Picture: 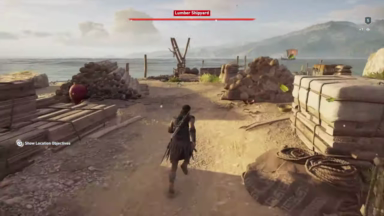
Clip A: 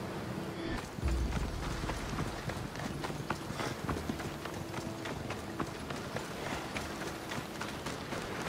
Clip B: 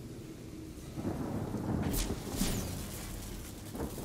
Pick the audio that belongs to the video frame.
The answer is A